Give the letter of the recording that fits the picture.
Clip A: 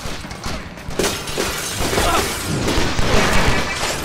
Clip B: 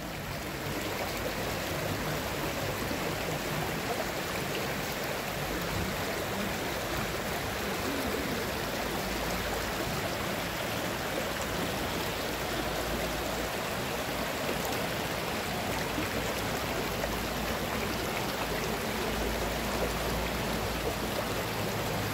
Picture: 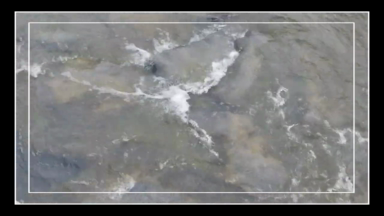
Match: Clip B